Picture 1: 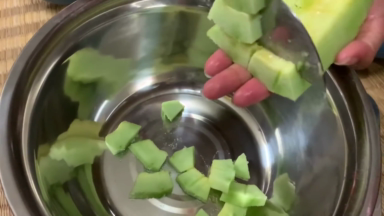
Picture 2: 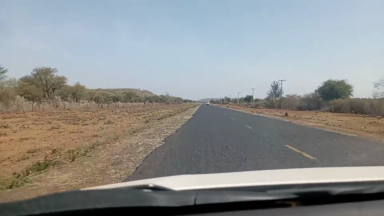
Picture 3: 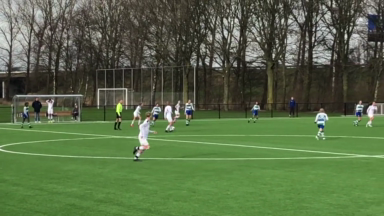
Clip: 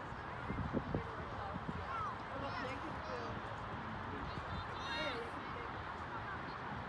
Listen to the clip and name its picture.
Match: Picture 3